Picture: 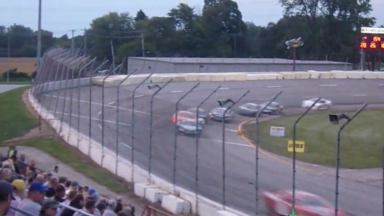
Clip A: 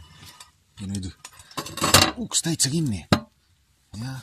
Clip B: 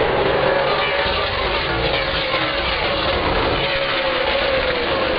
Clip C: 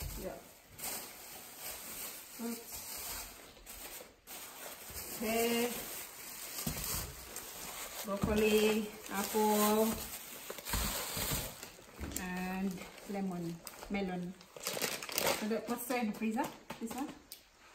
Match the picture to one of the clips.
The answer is B